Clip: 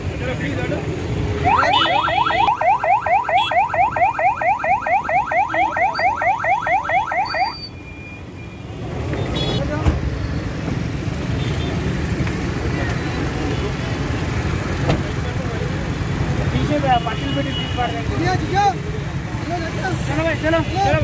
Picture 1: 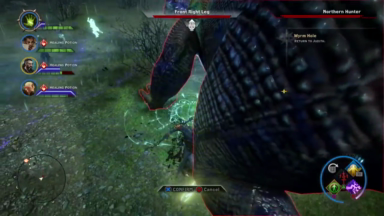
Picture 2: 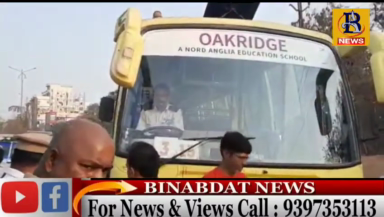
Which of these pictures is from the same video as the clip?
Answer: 2